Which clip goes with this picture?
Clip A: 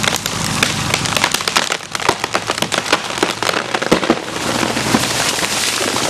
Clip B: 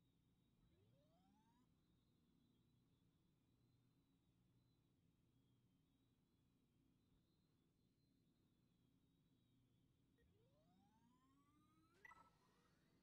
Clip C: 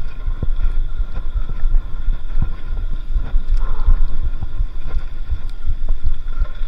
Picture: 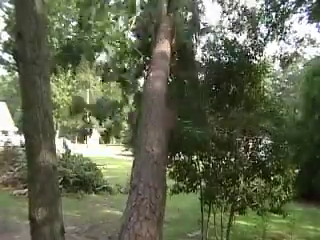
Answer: A